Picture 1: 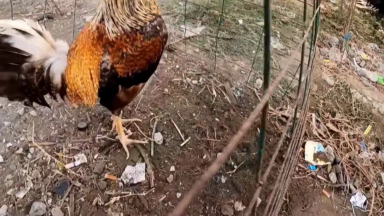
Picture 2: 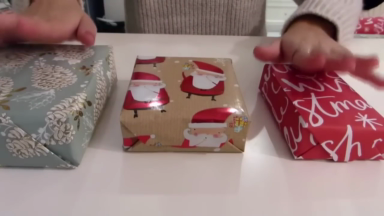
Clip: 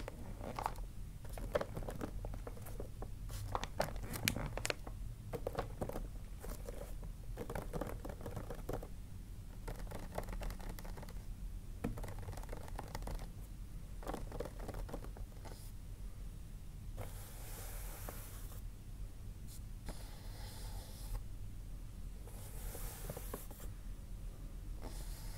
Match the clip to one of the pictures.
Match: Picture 2